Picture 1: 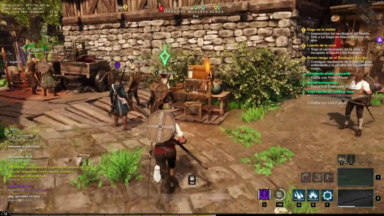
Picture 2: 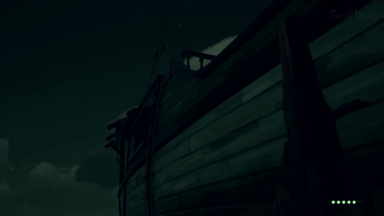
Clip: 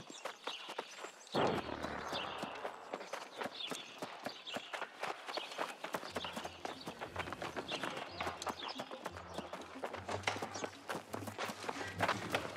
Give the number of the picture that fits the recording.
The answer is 1